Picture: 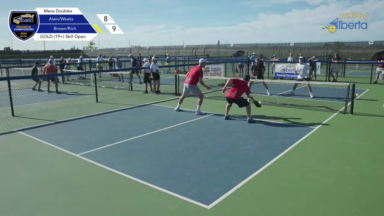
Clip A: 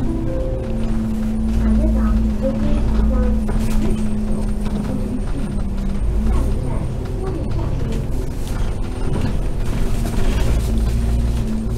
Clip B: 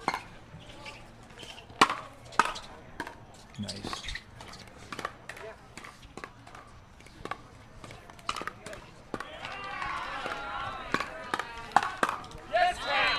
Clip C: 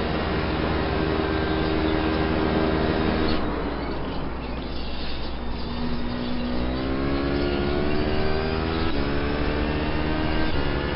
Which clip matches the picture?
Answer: B